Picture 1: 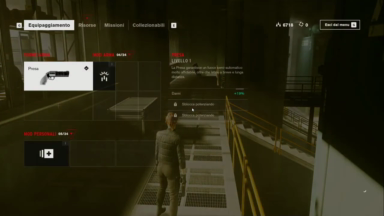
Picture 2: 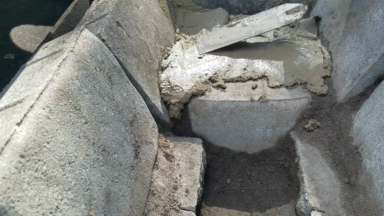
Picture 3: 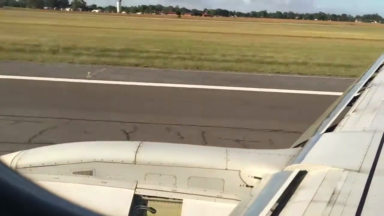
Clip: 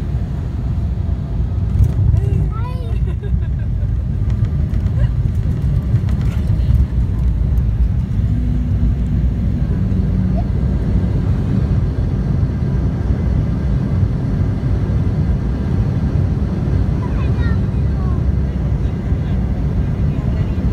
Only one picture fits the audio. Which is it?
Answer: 3